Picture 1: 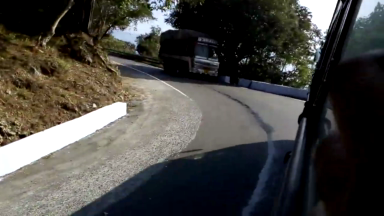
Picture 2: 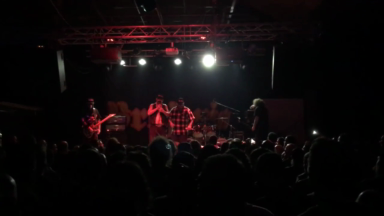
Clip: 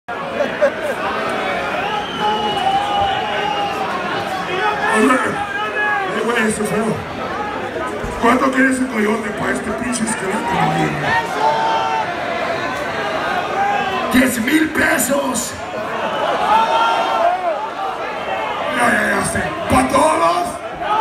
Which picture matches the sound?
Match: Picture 2